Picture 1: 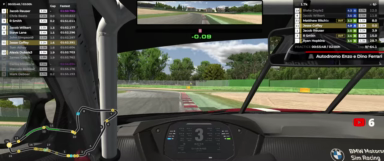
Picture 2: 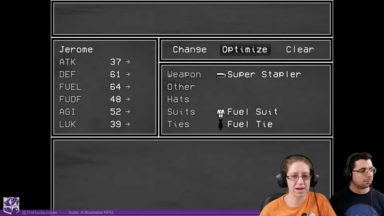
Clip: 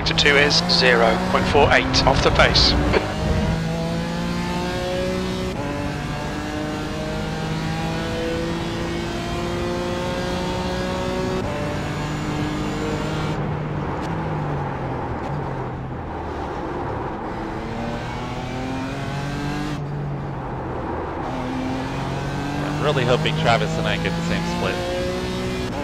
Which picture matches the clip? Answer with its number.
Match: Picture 1